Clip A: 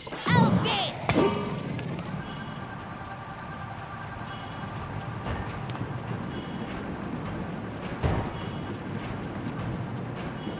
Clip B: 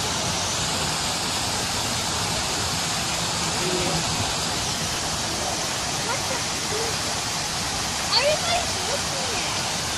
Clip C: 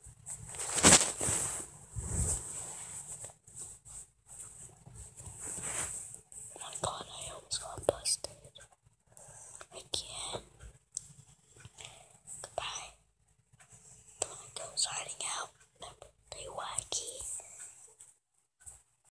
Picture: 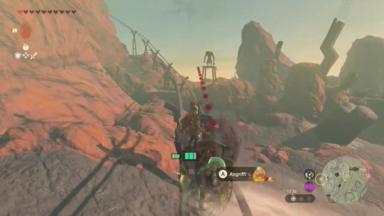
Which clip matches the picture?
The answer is A